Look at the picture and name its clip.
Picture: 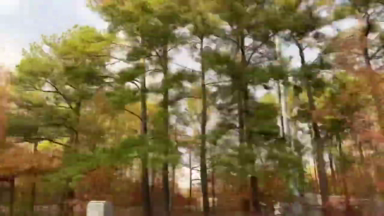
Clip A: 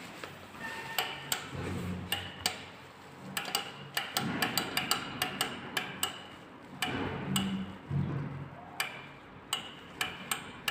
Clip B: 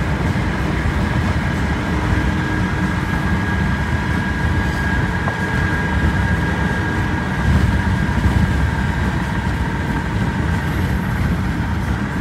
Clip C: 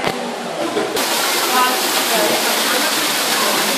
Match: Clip B